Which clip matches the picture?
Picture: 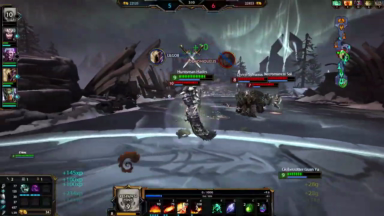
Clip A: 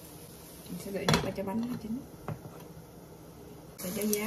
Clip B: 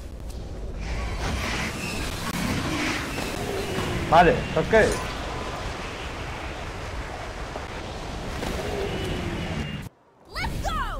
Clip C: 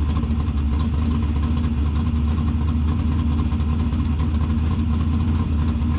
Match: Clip B